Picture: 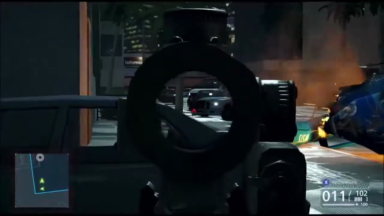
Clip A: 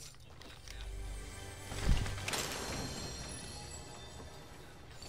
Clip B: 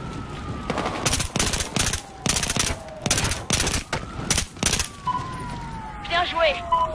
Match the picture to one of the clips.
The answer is B